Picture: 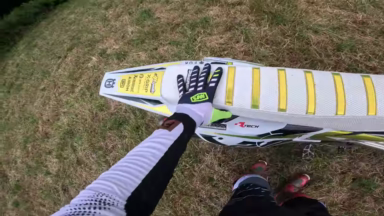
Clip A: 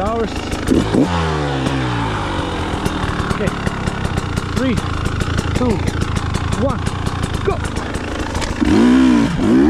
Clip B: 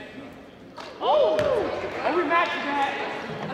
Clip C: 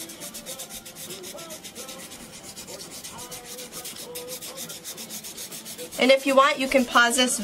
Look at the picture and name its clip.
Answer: A